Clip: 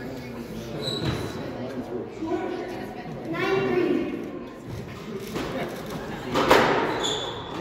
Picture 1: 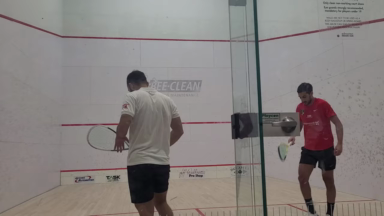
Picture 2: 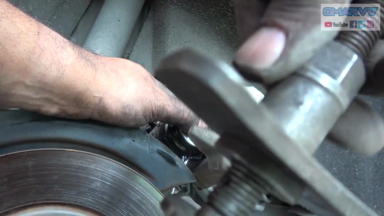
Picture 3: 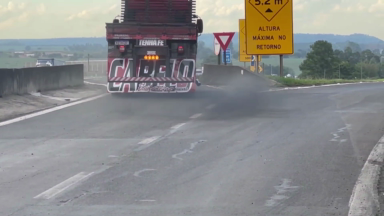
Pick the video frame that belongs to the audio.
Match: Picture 1